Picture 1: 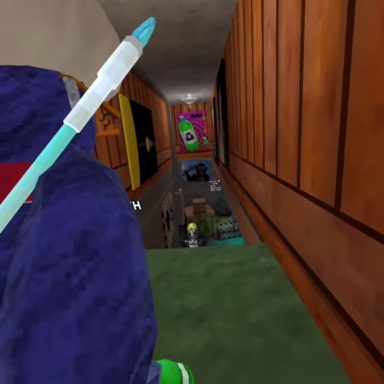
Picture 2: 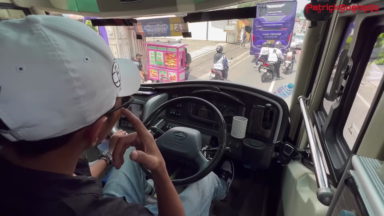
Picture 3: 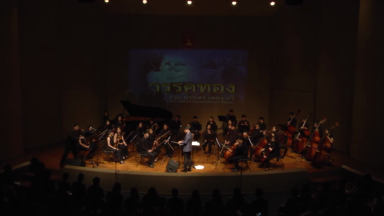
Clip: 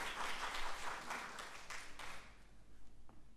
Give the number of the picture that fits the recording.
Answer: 3